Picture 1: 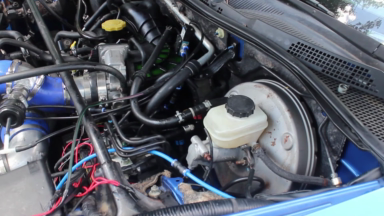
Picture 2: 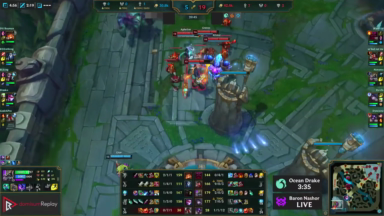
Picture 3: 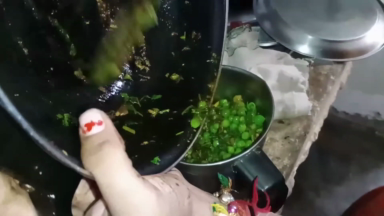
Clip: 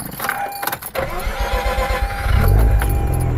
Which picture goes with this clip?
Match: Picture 1